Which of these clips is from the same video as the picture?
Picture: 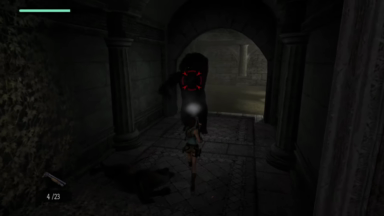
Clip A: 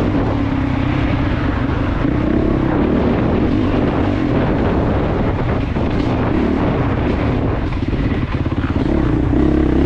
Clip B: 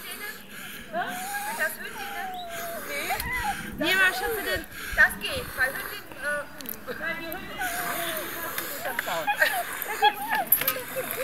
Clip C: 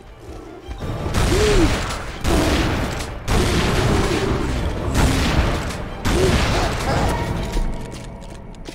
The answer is C